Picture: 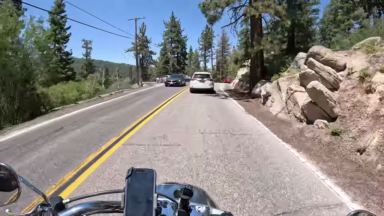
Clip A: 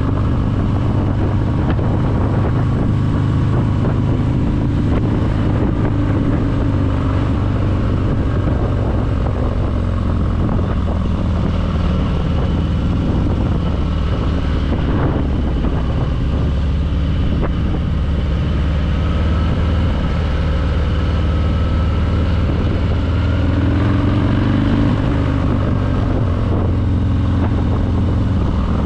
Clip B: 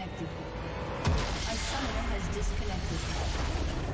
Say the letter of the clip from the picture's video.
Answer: A